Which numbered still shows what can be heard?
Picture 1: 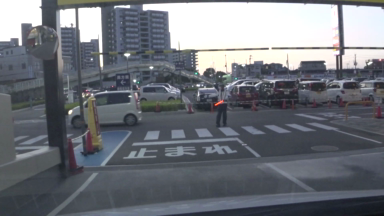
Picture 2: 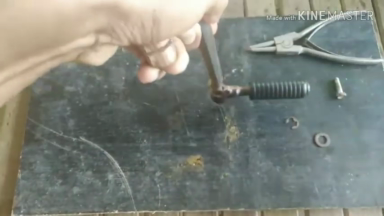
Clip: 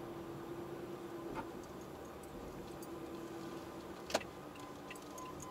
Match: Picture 1